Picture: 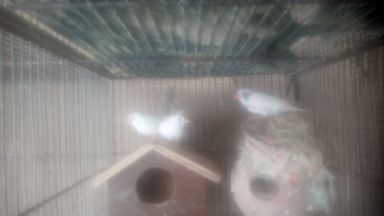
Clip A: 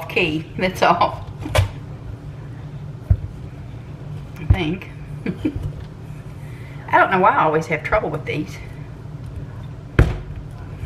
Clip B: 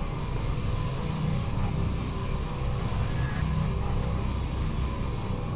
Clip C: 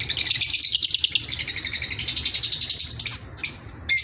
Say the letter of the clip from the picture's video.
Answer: C